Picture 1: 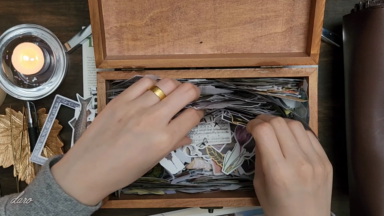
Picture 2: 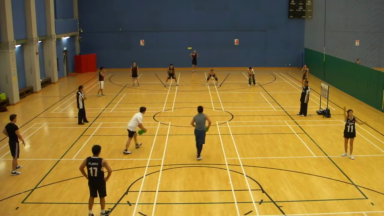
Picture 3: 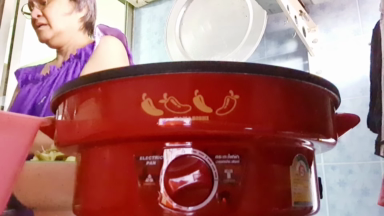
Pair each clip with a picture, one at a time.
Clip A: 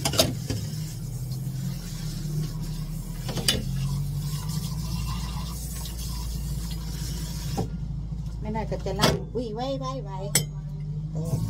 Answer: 3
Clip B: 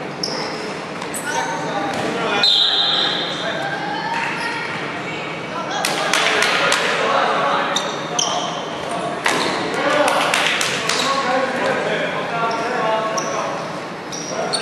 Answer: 2